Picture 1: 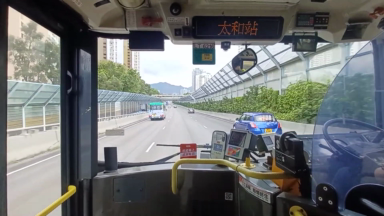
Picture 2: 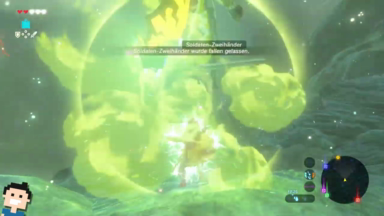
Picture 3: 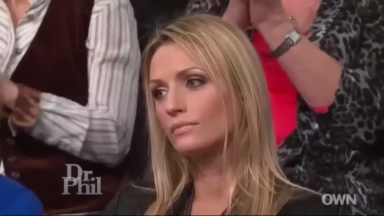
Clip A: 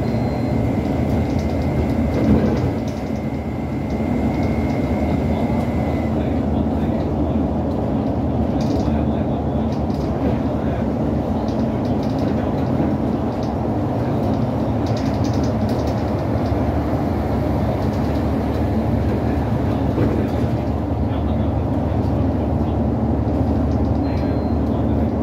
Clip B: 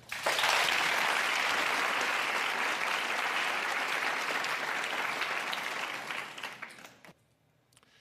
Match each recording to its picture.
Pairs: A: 1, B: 3